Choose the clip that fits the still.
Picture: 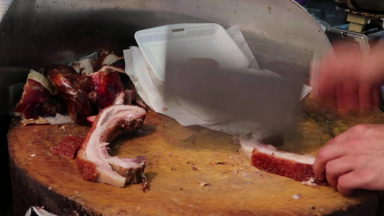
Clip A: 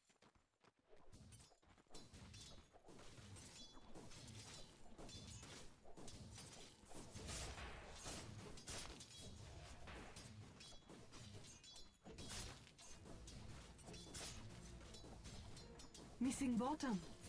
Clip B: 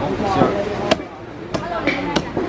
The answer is B